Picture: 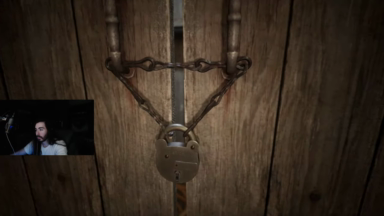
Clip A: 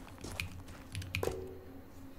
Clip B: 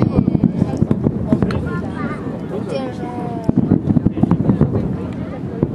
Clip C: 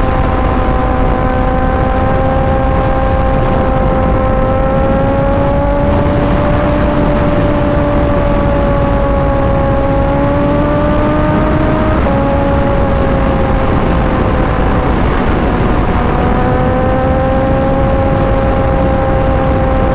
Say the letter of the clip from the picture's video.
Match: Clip A